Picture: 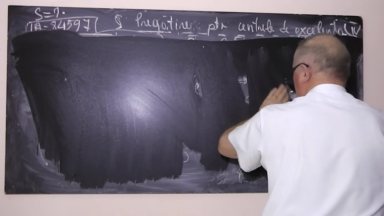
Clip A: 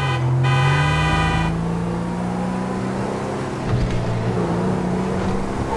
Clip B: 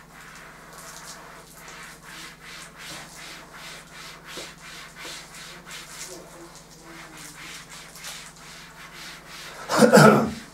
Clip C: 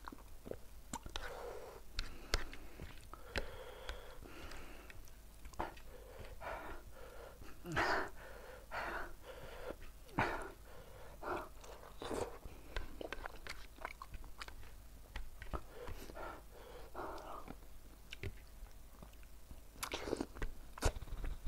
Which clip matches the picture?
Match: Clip B